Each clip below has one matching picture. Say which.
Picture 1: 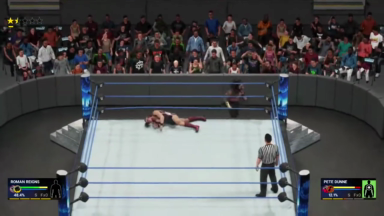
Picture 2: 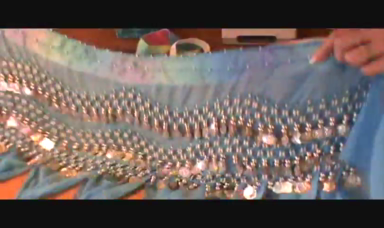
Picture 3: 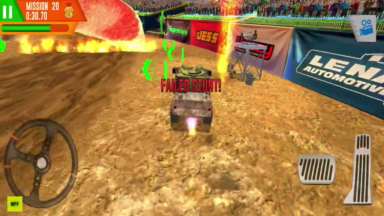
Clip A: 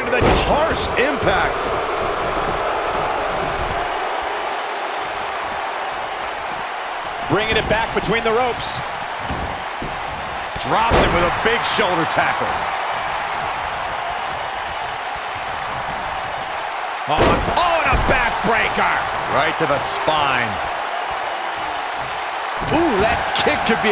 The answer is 1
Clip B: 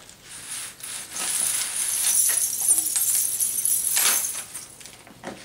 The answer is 2